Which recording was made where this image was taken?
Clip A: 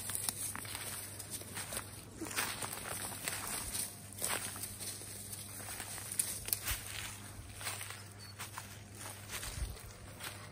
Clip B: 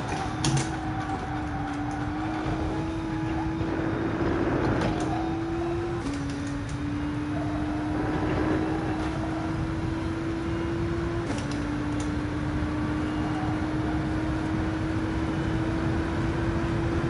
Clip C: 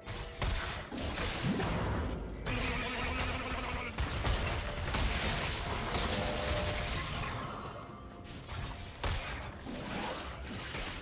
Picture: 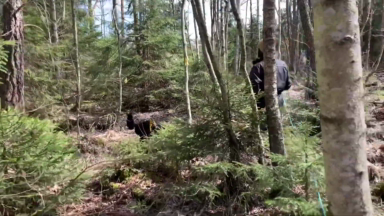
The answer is A